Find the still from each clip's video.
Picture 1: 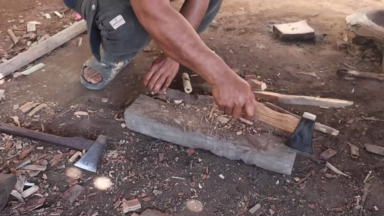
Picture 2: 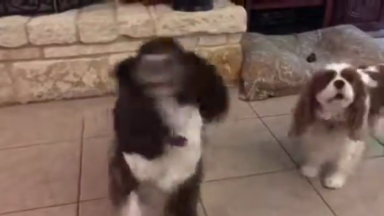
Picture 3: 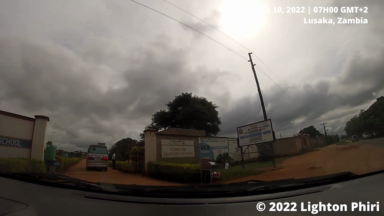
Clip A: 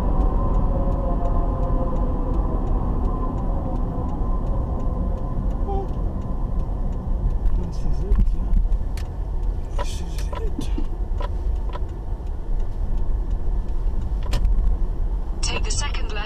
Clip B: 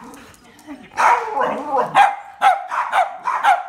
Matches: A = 3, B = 2